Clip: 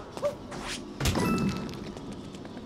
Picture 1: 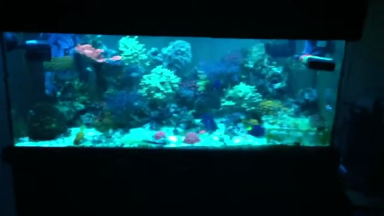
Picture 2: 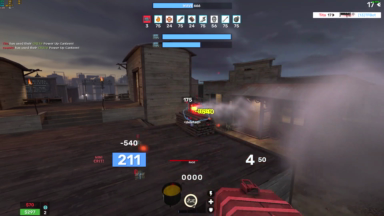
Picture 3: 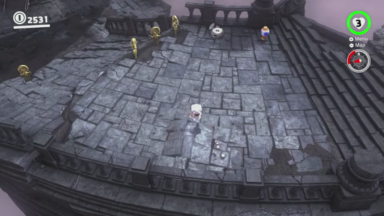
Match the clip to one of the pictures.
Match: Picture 3